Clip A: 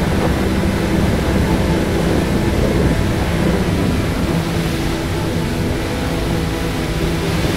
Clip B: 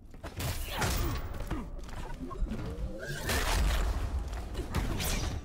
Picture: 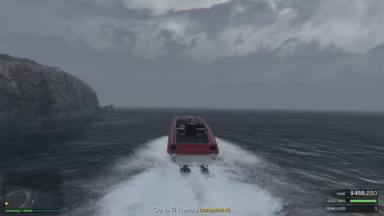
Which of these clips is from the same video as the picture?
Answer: A